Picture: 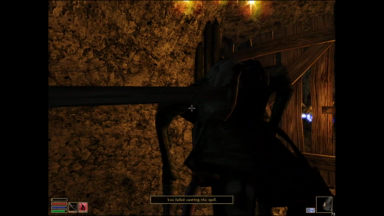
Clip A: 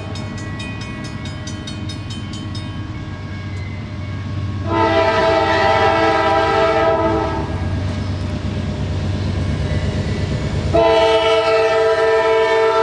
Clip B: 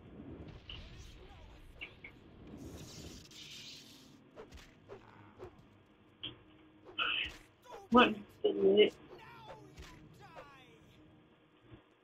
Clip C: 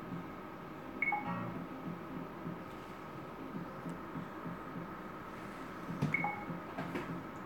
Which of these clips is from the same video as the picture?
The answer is B